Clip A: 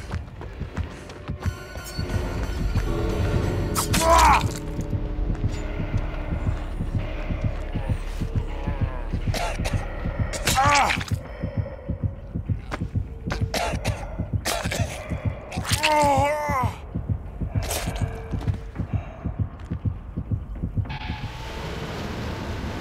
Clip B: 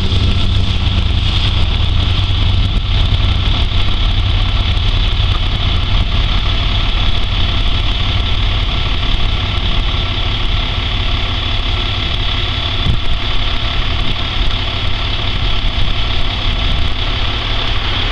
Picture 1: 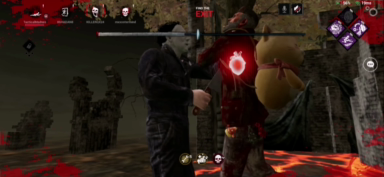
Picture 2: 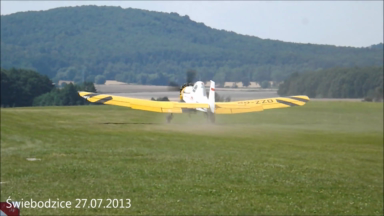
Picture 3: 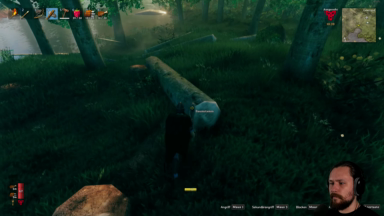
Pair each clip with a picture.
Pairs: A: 1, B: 2